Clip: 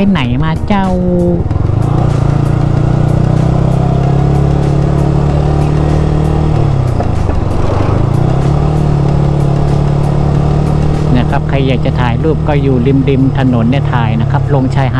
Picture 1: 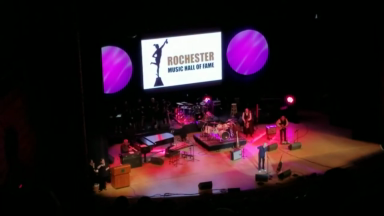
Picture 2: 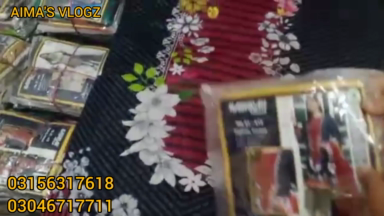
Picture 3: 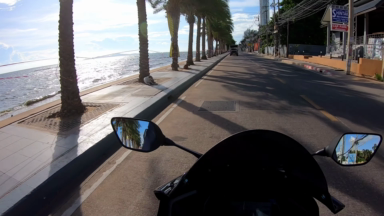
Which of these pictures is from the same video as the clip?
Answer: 3